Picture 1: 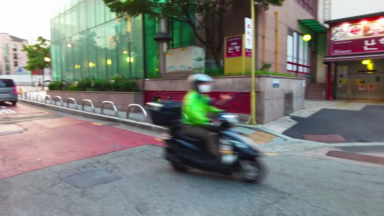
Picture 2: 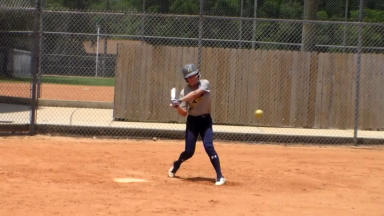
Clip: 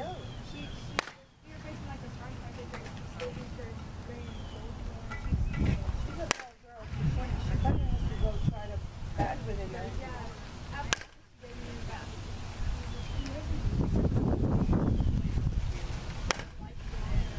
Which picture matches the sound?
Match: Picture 2